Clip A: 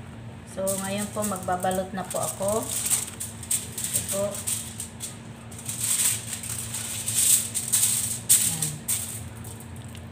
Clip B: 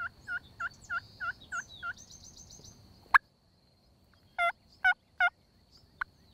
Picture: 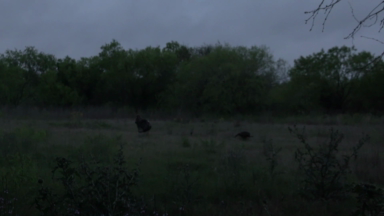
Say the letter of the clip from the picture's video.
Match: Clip B